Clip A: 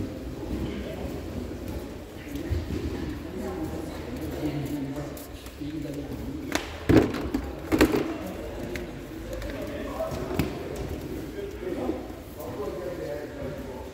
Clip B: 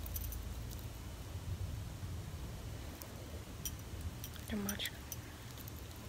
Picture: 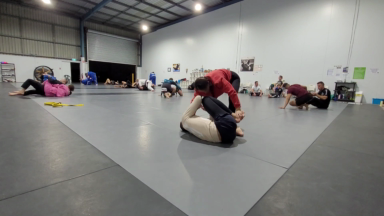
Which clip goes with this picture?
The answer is A